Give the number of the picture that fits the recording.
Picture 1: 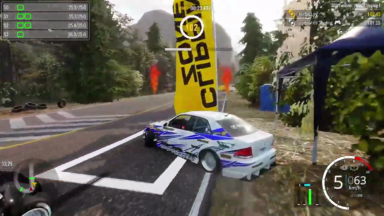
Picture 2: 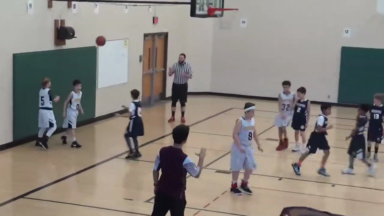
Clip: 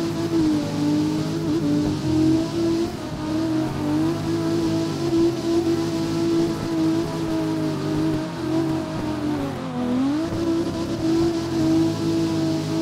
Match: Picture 1